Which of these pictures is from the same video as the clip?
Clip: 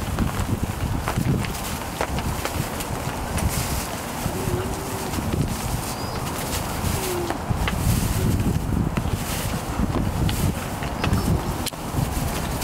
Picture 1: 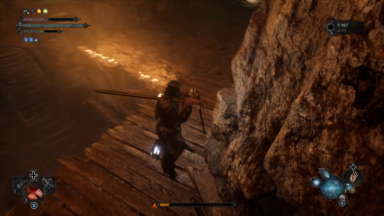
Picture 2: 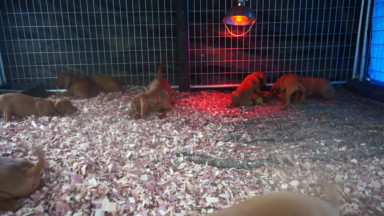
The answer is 2